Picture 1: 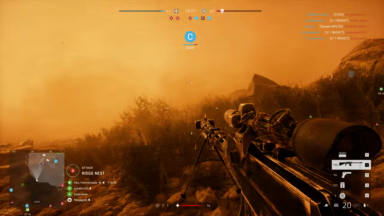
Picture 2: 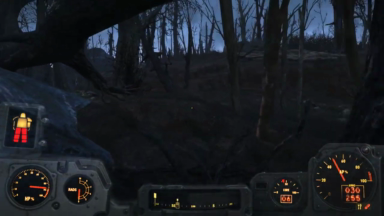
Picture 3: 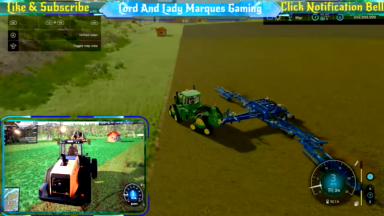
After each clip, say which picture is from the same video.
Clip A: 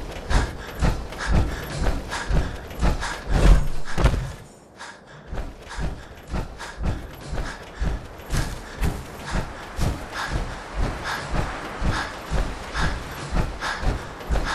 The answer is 2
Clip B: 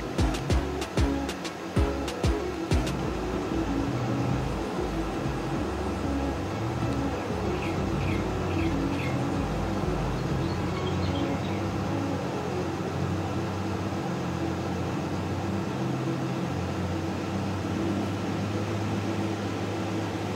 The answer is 3